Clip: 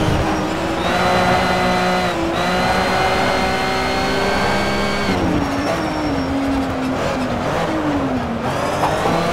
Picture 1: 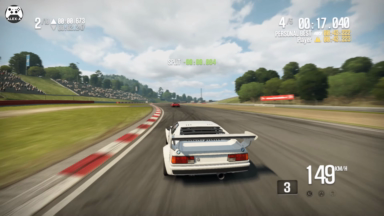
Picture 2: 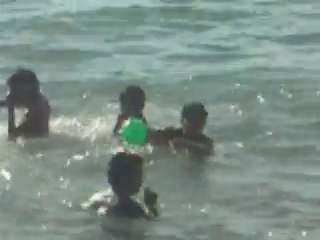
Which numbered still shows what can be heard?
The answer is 1